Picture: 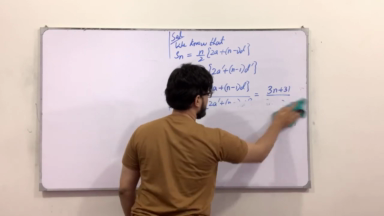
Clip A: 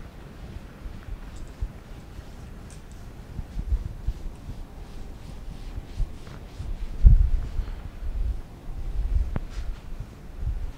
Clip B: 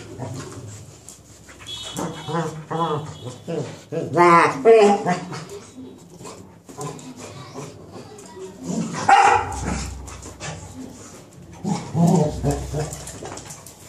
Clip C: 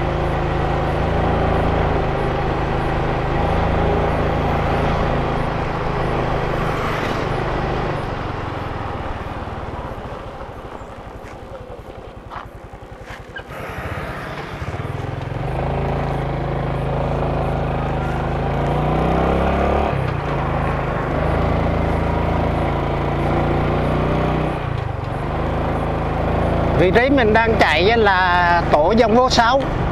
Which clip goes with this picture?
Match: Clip A